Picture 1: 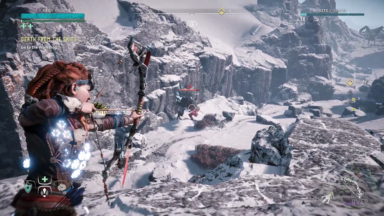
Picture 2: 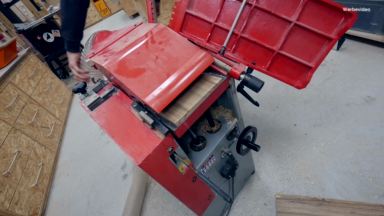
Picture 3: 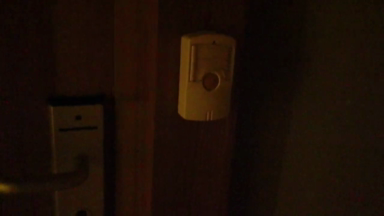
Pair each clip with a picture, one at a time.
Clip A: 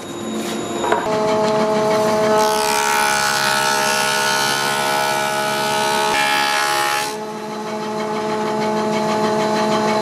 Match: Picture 2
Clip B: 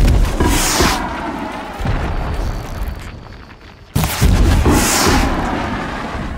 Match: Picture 1